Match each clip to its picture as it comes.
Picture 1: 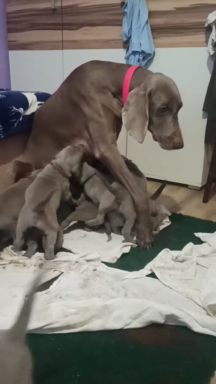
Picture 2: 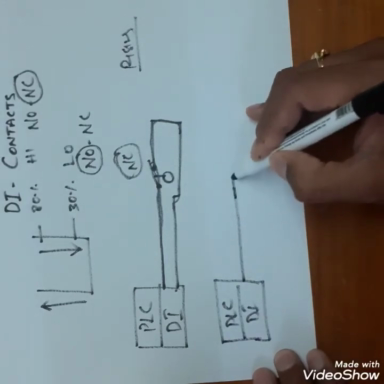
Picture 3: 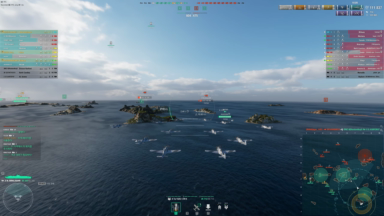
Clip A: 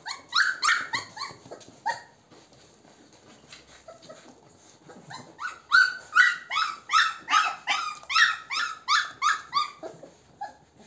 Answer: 1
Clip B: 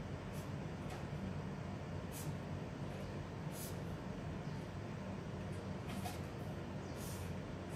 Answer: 2